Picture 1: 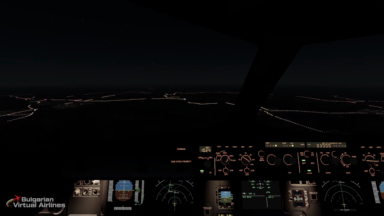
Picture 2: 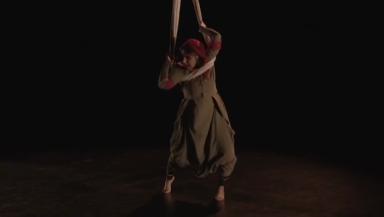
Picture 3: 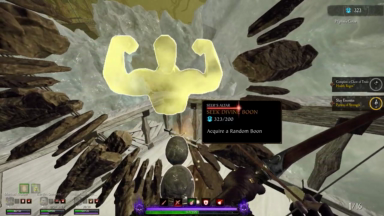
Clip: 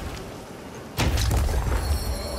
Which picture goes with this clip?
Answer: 3